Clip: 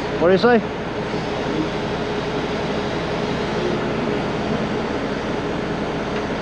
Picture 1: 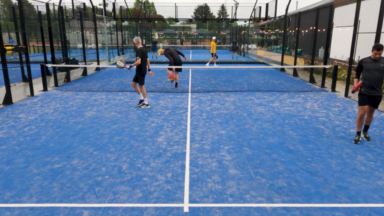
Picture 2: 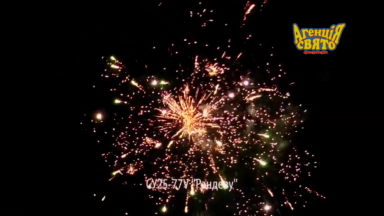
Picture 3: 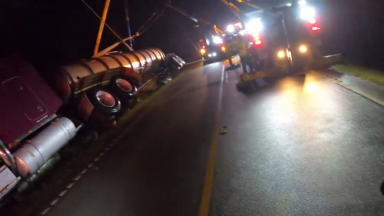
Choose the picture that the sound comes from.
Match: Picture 3